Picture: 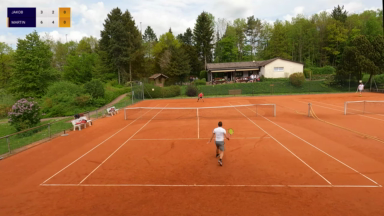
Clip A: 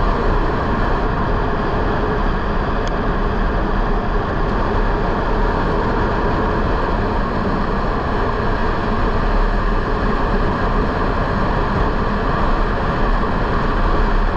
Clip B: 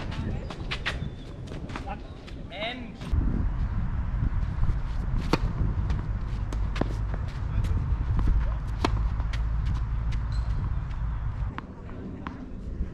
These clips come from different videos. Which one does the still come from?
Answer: B